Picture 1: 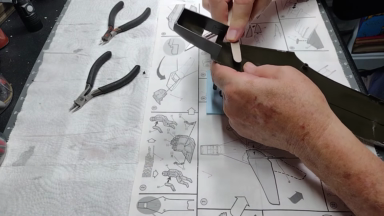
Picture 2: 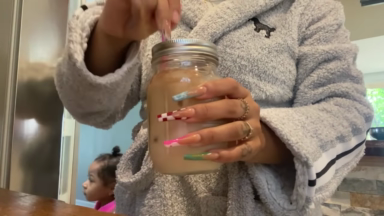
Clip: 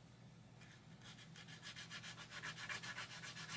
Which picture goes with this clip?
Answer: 1